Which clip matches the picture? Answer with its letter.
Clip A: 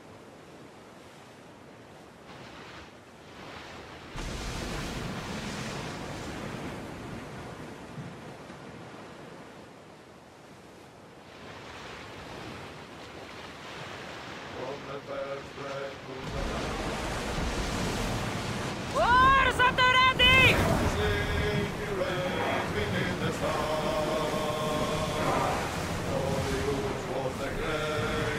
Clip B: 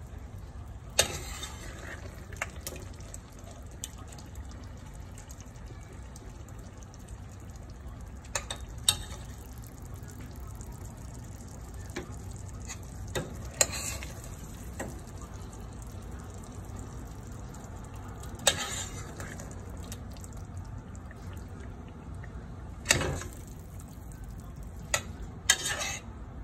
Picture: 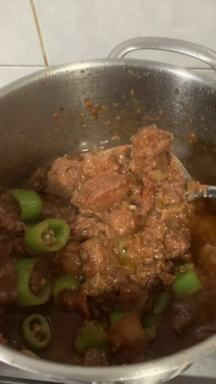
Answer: B